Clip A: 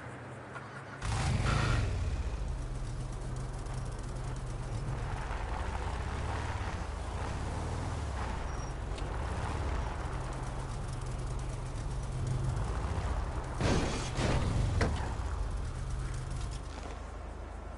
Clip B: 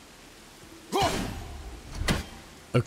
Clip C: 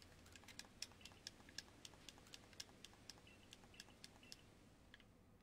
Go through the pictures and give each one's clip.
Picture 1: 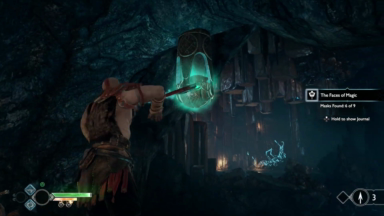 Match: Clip B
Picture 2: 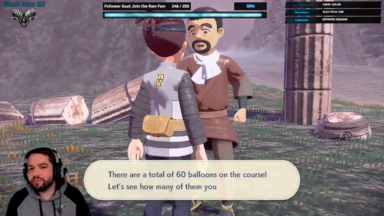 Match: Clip C